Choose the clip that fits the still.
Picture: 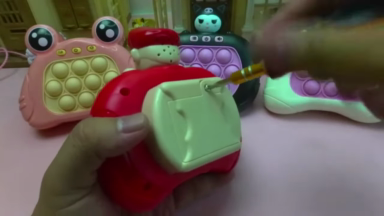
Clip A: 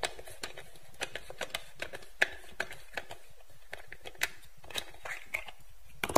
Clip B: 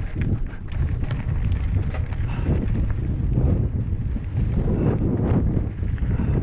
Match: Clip A